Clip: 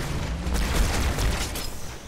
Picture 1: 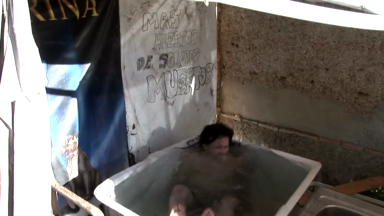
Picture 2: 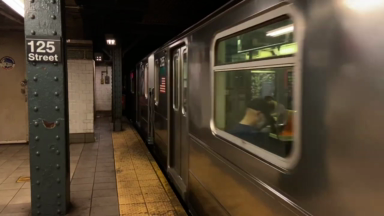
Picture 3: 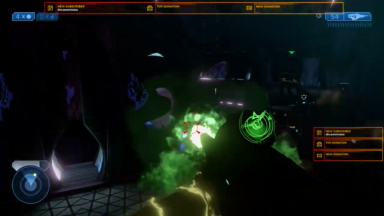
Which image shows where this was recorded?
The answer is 3